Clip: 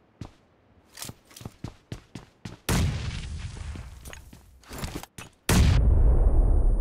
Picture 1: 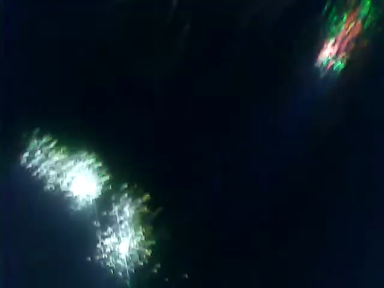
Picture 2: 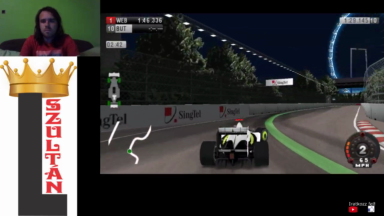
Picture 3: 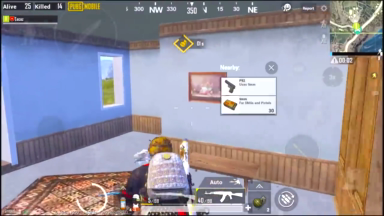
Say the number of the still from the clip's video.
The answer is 3